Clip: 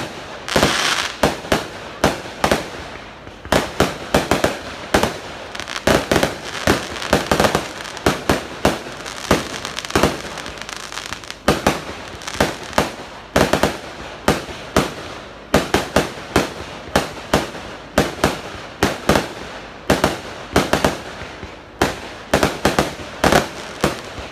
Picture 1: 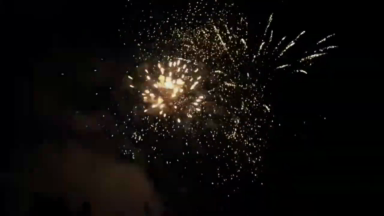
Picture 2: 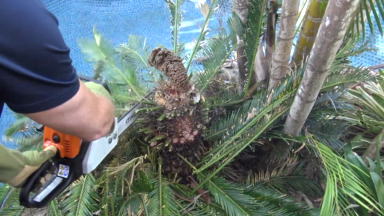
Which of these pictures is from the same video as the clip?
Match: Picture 1